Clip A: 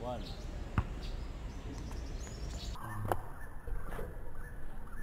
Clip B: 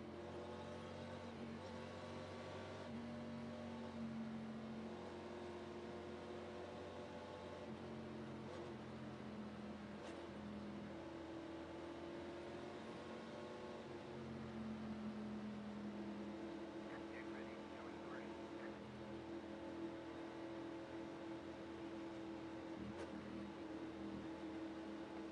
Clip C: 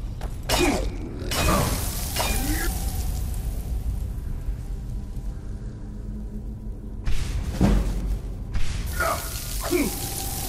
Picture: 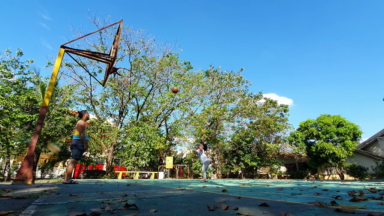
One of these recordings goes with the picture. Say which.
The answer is A